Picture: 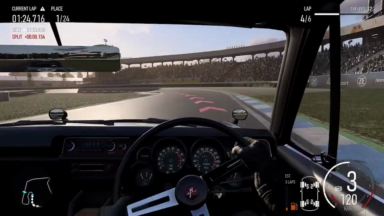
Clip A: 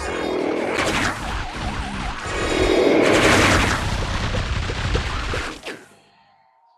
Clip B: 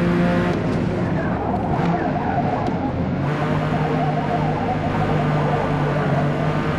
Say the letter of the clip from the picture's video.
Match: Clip B